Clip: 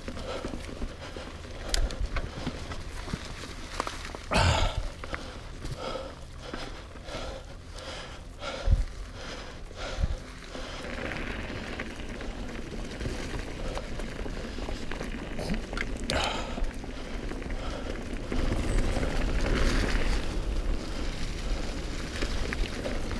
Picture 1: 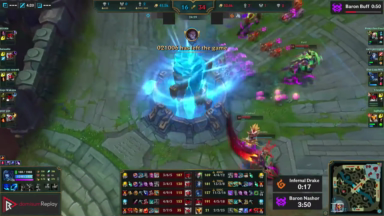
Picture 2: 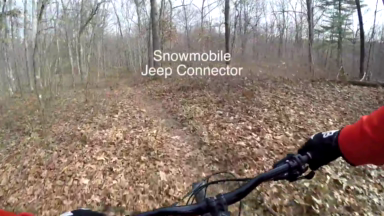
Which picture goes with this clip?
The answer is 2